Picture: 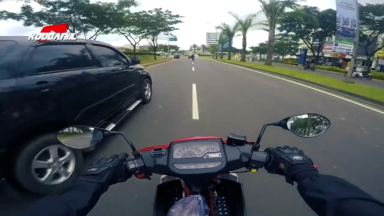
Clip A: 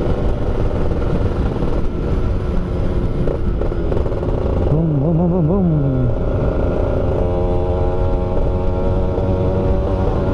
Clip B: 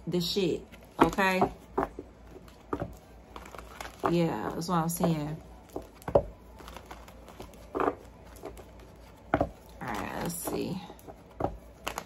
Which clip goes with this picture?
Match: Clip A